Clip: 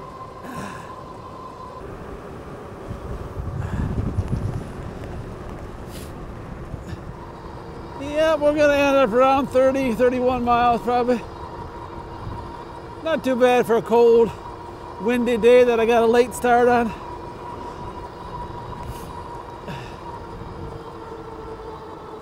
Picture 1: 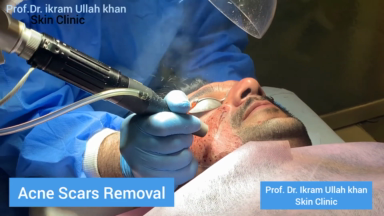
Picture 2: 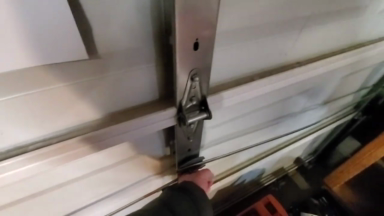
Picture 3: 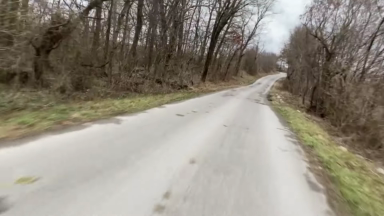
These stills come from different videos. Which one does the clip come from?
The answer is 3